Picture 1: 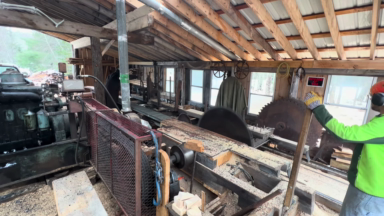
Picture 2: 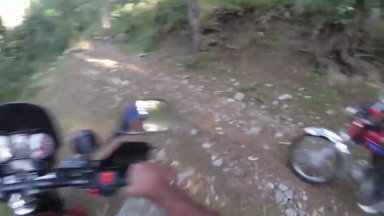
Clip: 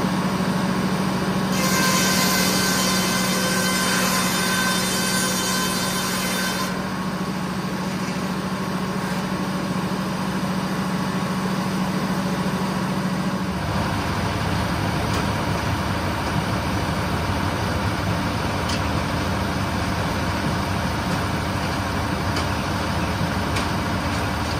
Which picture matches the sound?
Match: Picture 1